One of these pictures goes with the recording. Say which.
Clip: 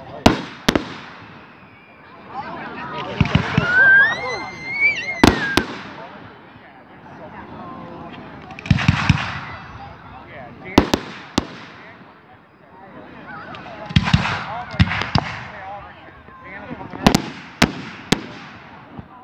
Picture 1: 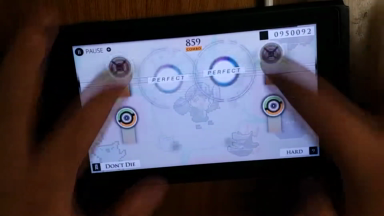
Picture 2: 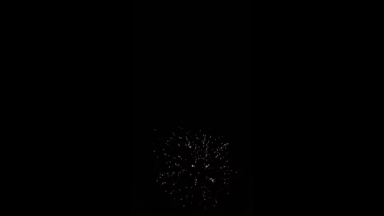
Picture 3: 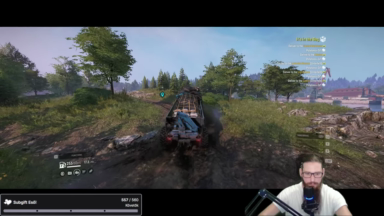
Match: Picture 2